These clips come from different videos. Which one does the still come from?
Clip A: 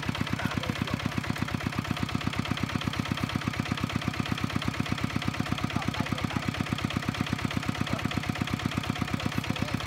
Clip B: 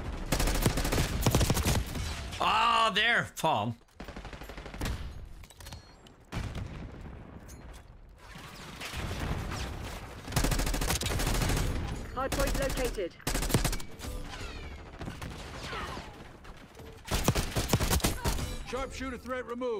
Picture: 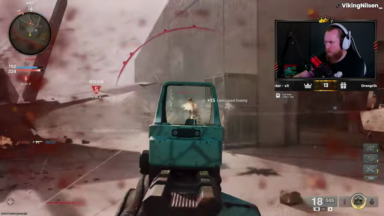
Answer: B